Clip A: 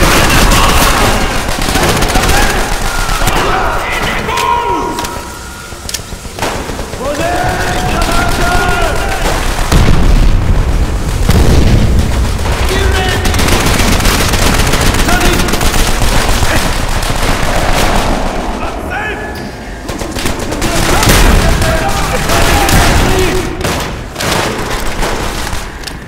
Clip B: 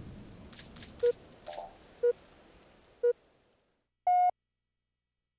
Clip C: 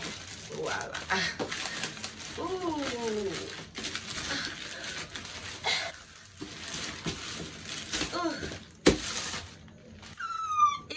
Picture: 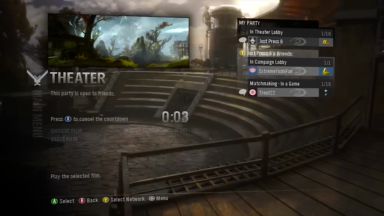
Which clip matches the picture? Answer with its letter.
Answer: B